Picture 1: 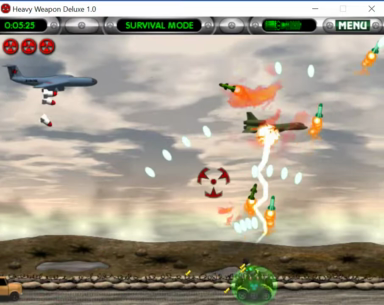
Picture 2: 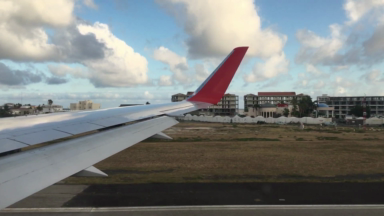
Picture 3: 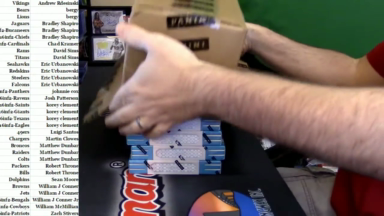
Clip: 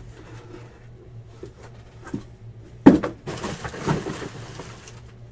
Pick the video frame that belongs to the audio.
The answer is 3